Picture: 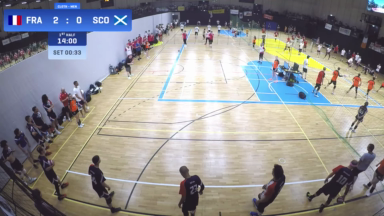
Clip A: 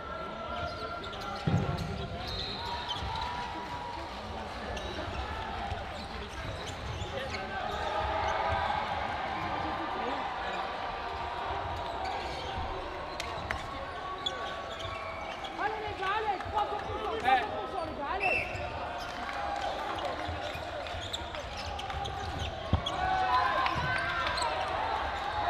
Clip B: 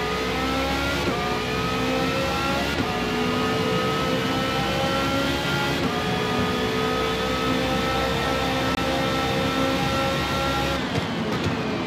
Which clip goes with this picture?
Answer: A